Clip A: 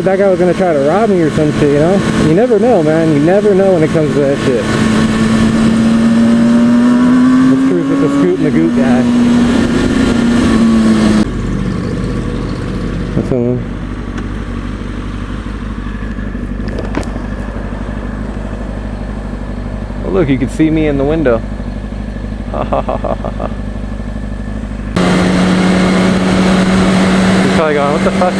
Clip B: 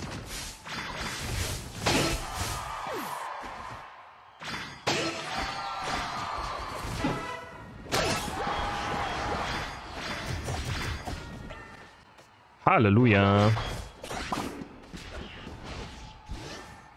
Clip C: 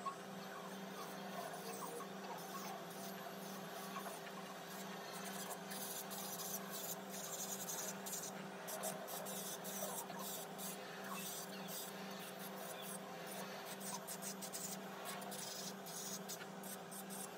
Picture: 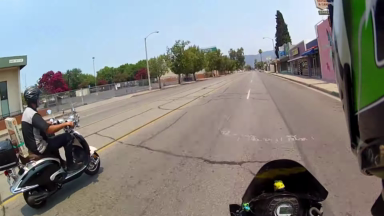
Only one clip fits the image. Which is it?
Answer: A